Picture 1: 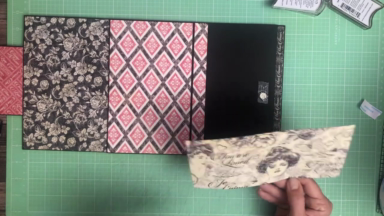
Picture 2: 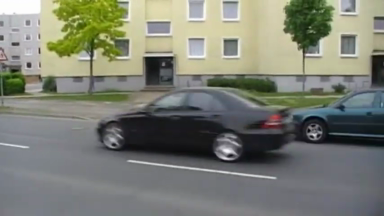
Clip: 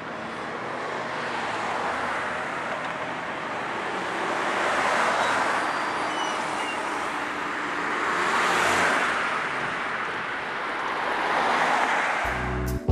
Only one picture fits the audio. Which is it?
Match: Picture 2